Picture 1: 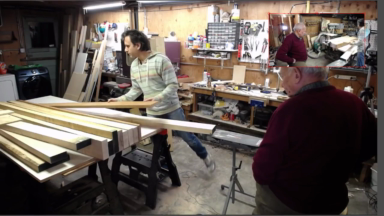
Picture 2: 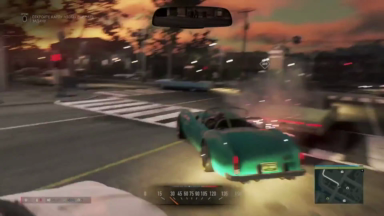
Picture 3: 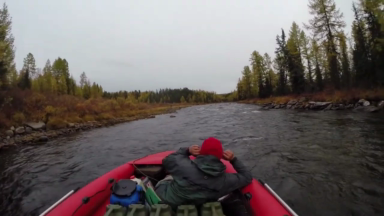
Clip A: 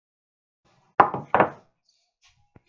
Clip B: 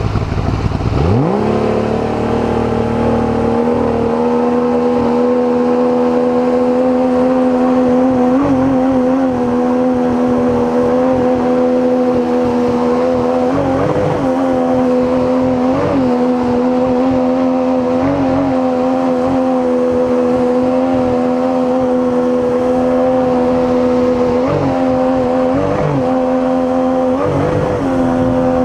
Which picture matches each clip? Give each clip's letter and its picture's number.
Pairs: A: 1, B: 3